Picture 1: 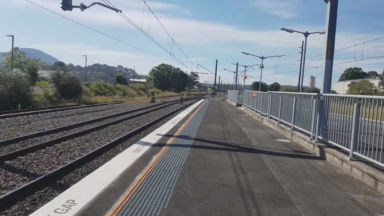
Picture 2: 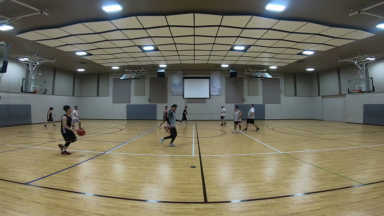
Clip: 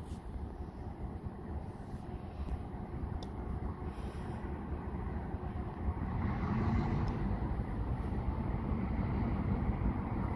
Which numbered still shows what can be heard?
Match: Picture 1